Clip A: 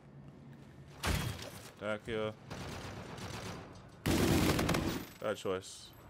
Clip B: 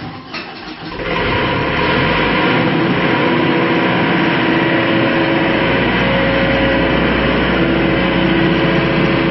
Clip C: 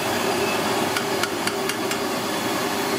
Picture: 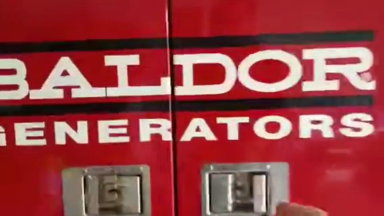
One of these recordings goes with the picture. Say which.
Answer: B